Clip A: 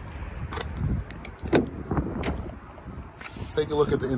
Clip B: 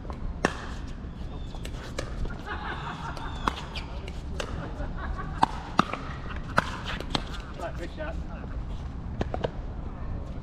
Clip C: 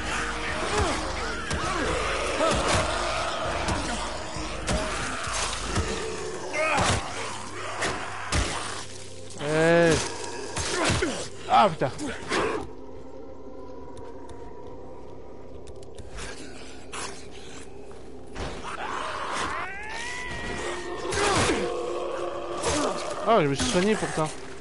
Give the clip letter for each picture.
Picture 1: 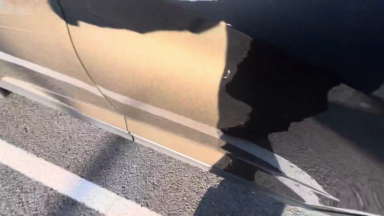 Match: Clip A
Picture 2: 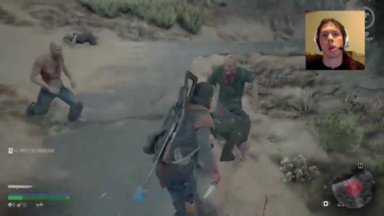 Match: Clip C